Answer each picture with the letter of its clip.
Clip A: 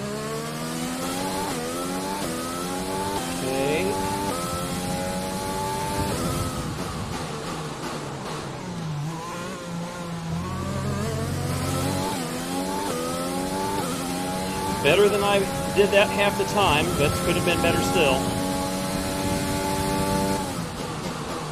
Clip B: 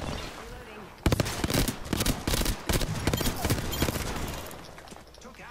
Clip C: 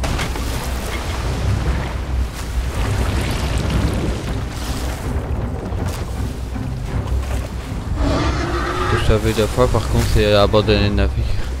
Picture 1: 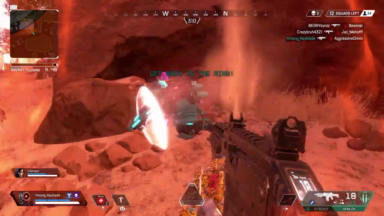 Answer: B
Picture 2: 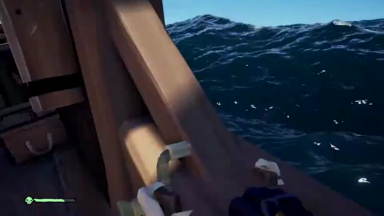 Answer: C